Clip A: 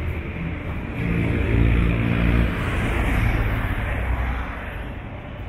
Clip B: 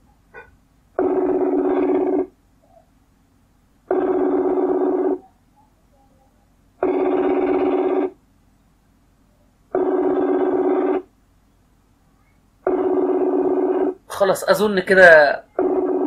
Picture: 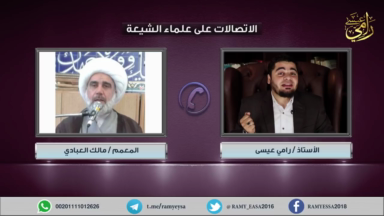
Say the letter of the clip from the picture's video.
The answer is B